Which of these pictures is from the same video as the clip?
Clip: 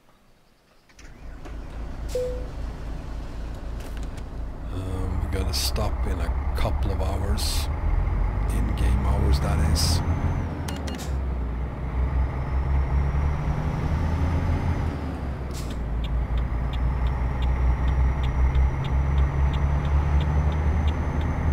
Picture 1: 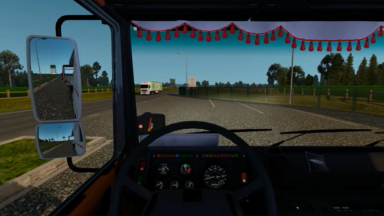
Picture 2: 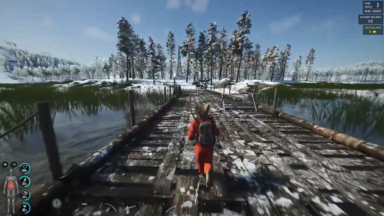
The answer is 1